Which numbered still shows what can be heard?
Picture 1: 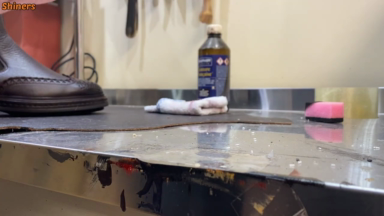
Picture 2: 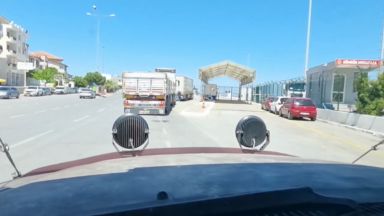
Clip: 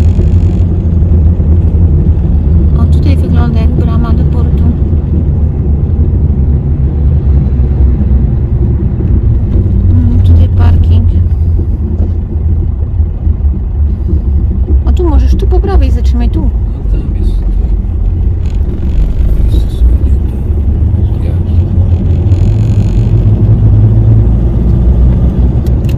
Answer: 2